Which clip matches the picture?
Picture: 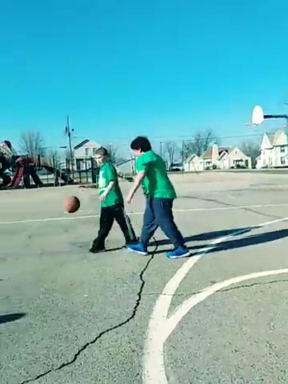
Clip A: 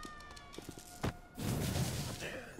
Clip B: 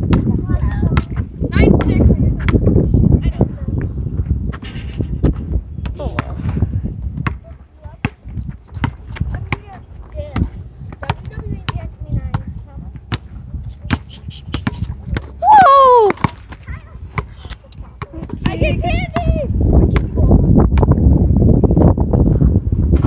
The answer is B